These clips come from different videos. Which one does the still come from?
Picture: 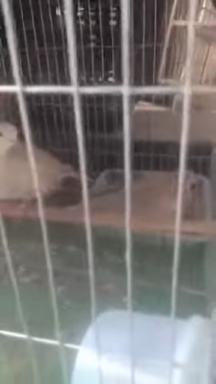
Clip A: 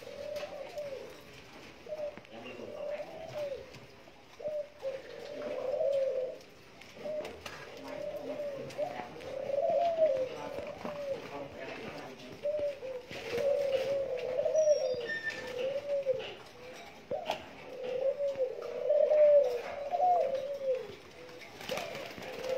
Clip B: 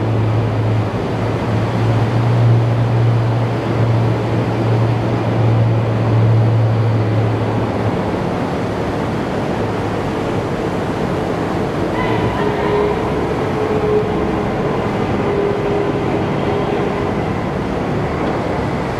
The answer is A